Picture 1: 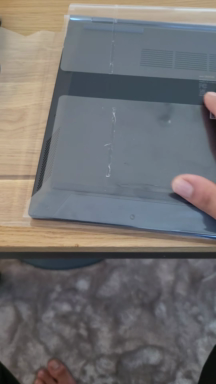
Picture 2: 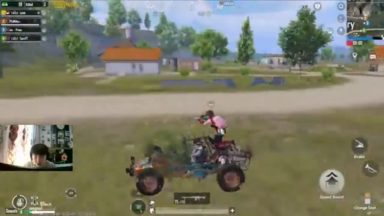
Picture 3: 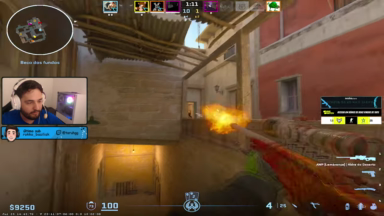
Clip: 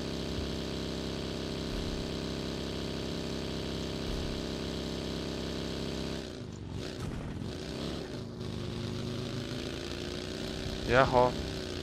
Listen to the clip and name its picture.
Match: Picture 2